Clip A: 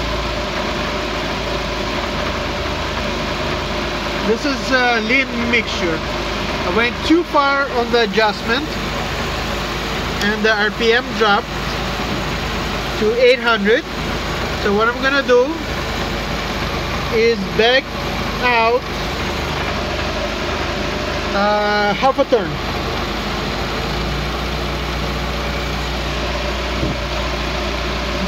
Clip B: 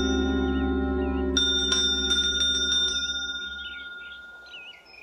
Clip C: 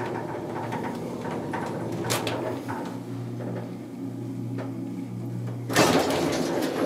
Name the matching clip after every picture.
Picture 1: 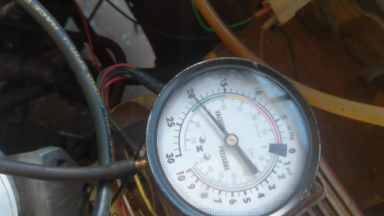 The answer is A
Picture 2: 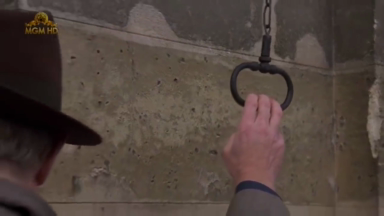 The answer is B